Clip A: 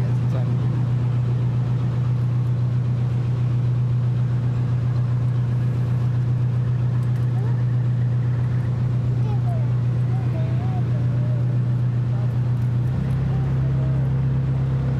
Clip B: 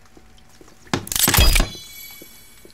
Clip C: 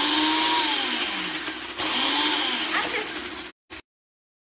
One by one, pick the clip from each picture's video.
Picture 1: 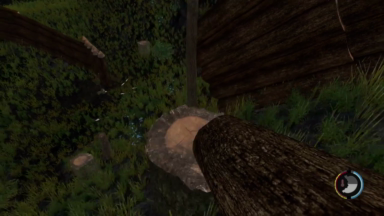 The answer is B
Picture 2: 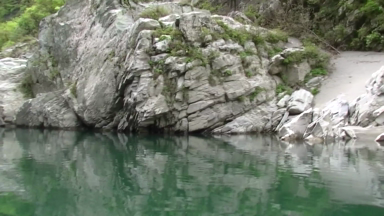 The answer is A